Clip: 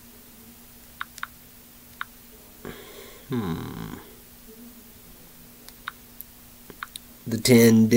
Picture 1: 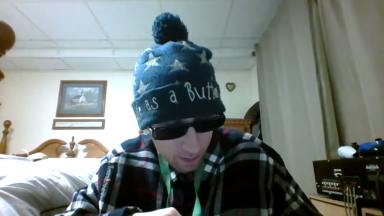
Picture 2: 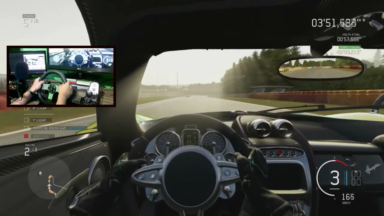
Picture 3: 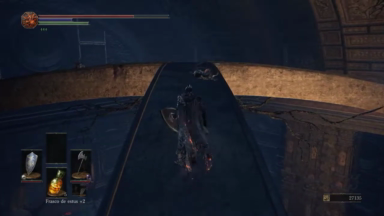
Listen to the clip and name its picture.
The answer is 1